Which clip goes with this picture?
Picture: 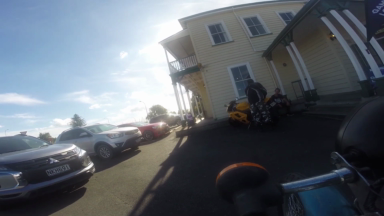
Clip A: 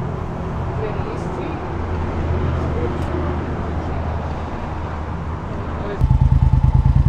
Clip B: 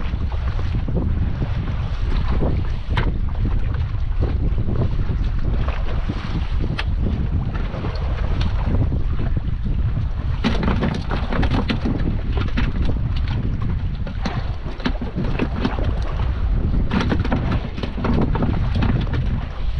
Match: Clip A